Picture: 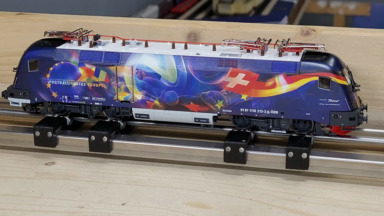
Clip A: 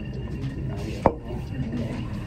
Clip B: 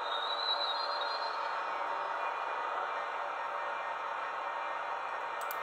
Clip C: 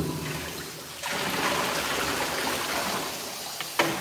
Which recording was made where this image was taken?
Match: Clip B